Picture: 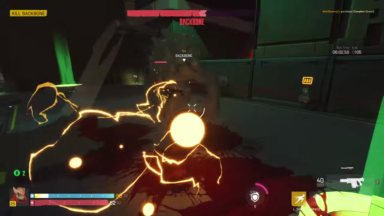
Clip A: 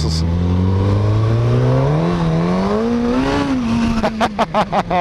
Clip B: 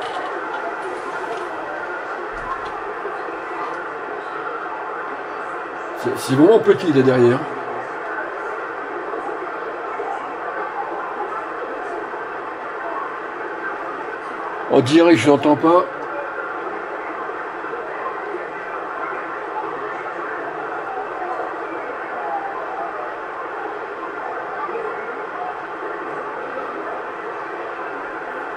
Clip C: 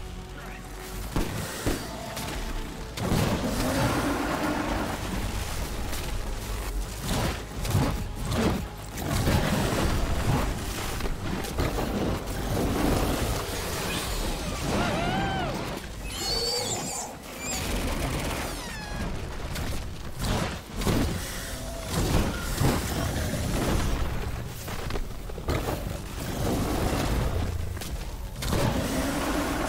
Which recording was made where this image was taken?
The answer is C